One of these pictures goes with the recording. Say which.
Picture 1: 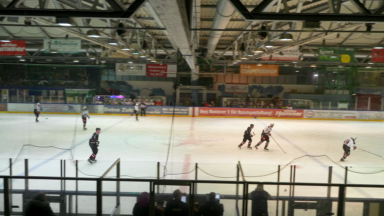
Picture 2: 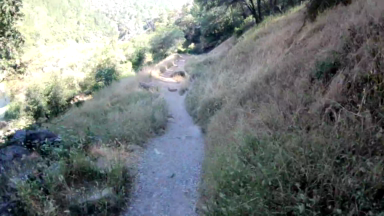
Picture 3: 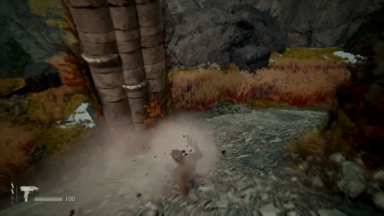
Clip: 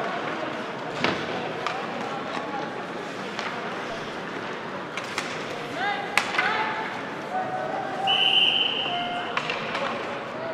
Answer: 1